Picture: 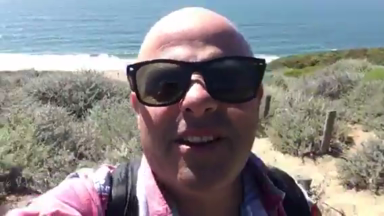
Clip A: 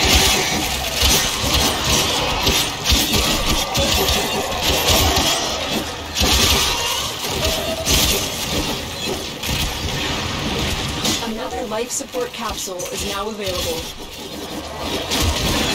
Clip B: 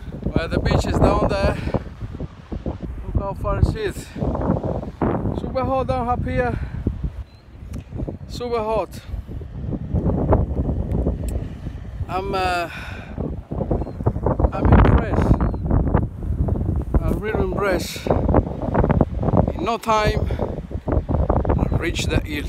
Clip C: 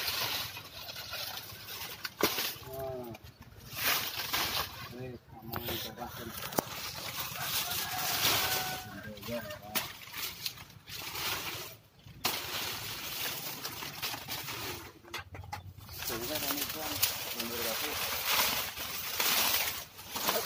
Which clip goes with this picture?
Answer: B